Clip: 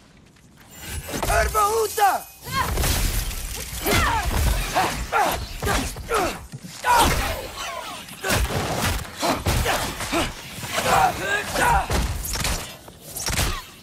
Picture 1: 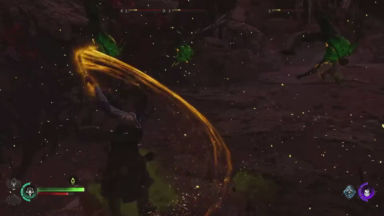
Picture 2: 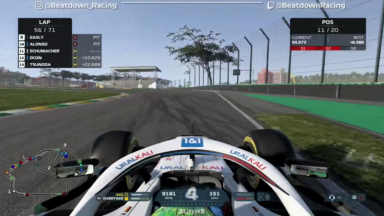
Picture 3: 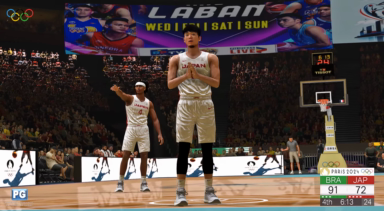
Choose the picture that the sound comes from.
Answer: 1